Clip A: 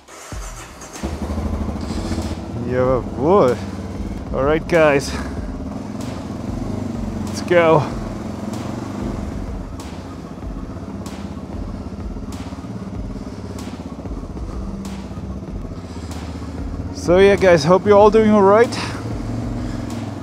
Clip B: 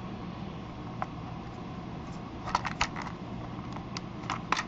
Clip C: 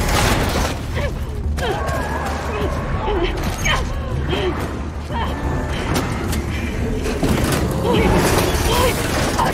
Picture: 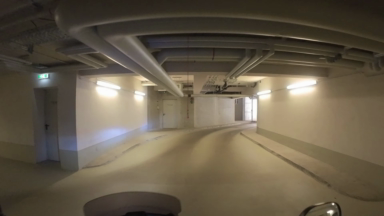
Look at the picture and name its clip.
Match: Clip A